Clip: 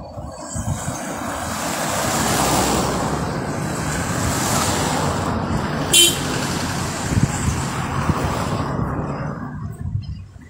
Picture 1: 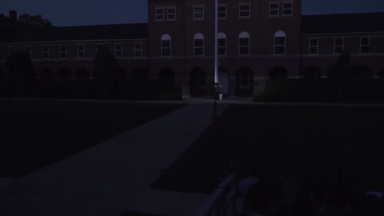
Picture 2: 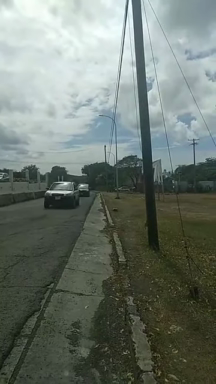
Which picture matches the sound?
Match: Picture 2